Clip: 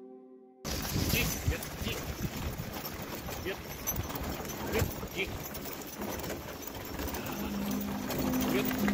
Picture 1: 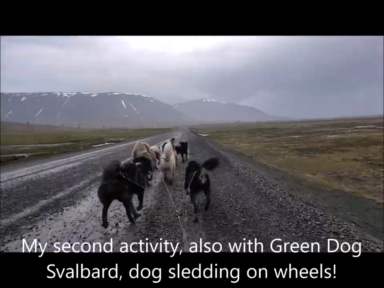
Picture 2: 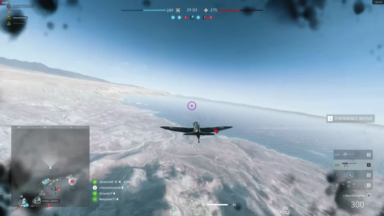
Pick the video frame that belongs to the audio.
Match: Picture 1